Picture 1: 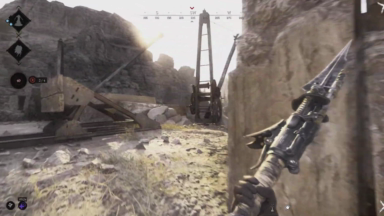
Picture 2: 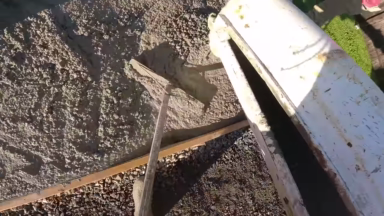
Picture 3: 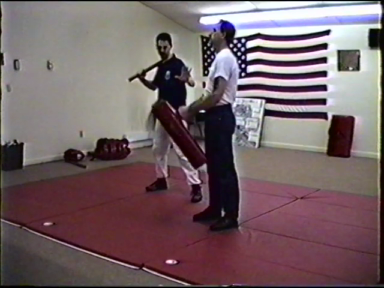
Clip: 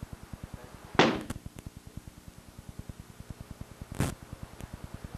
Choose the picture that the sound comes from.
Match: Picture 3